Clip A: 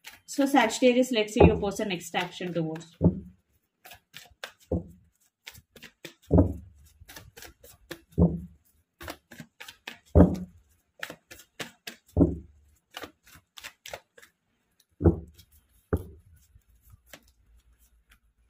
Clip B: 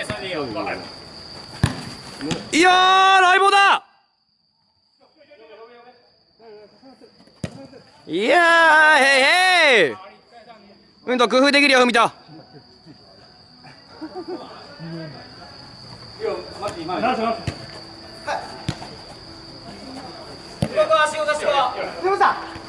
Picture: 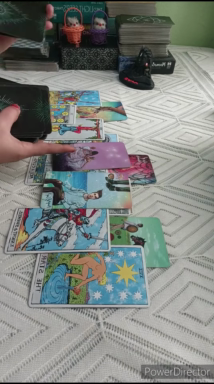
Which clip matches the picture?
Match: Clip A